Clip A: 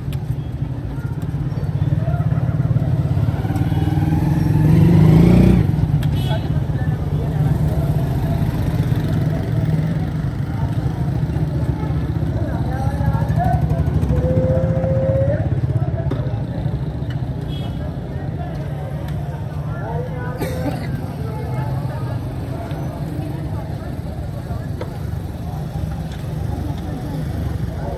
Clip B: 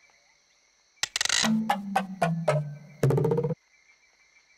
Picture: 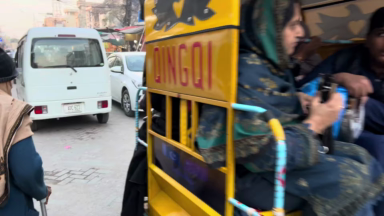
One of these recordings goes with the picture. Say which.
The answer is A